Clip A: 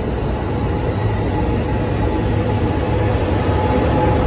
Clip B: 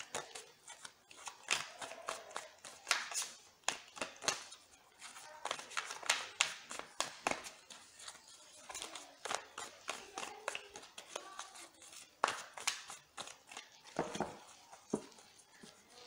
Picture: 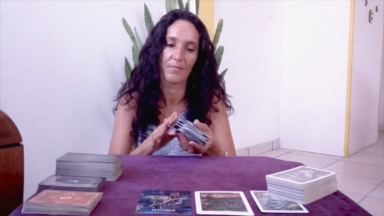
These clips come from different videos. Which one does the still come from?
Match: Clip B